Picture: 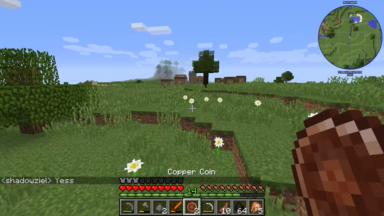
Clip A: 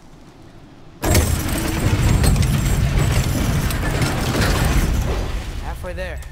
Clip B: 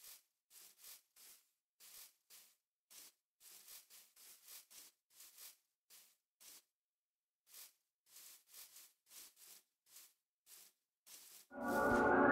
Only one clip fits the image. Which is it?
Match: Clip B